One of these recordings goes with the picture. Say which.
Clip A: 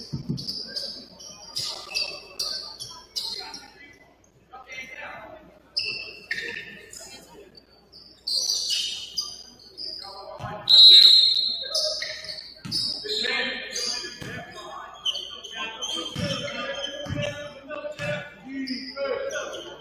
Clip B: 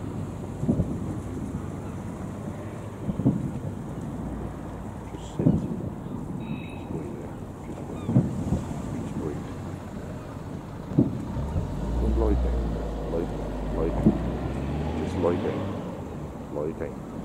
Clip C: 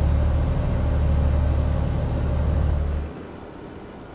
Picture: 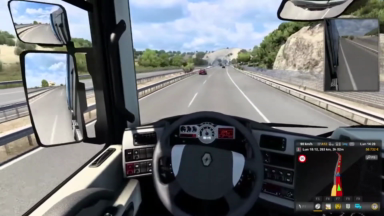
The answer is C